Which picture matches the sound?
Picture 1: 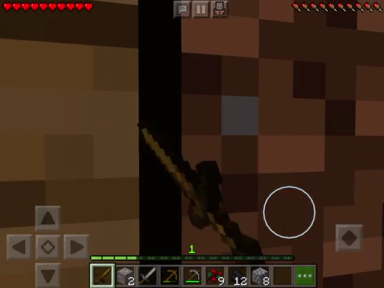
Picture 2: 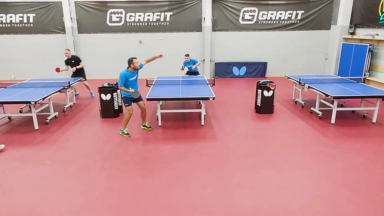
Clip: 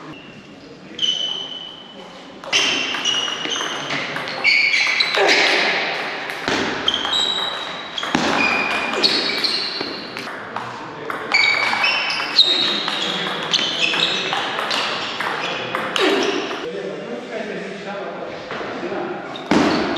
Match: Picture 2